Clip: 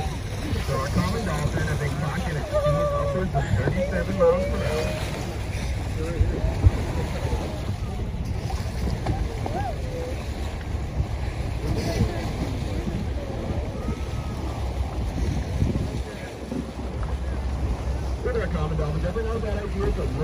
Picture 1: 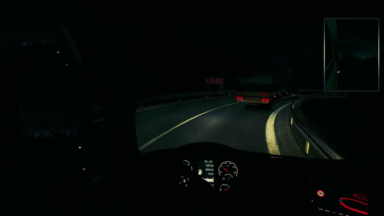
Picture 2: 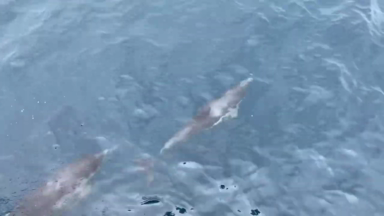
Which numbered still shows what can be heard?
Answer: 2